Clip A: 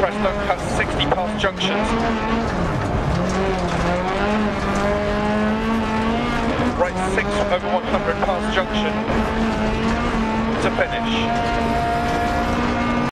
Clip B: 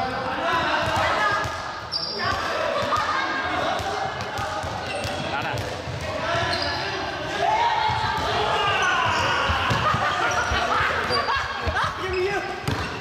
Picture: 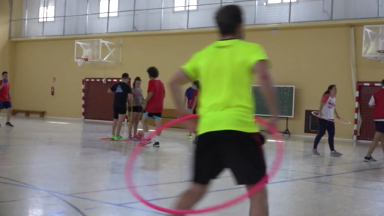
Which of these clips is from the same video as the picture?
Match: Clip B